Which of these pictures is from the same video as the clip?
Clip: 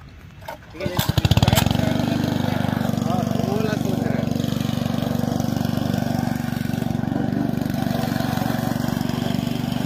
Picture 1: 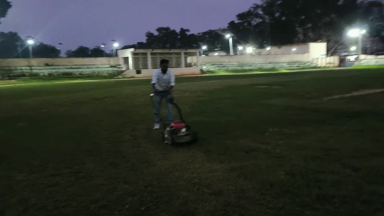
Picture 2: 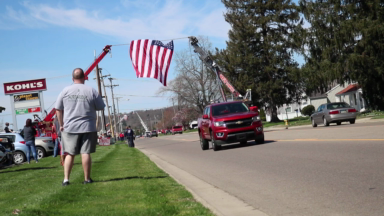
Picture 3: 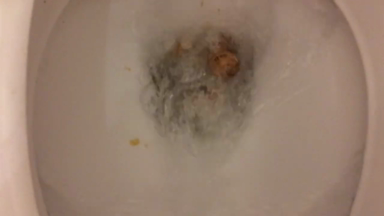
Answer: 1